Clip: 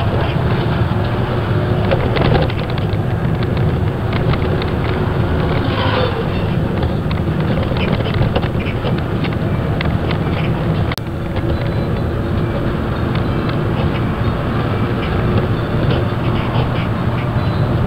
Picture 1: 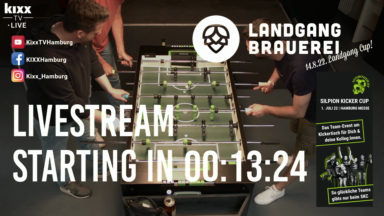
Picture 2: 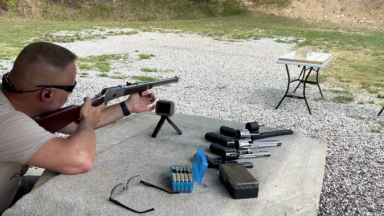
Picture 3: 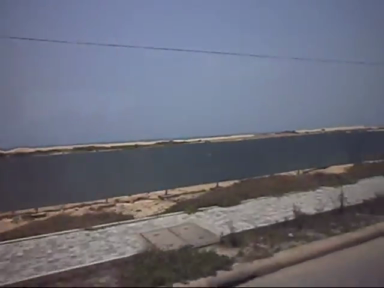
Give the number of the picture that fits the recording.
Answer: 3